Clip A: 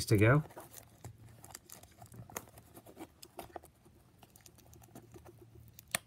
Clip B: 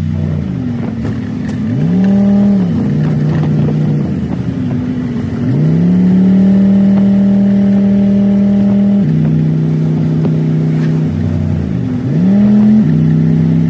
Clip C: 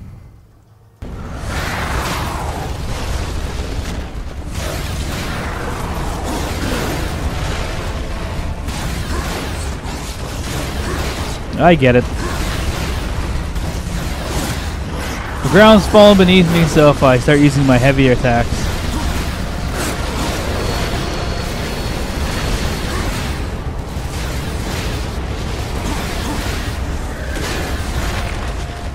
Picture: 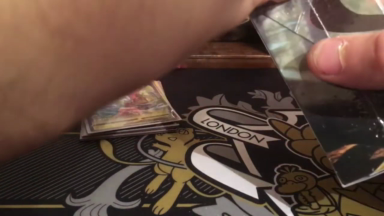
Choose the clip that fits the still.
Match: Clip A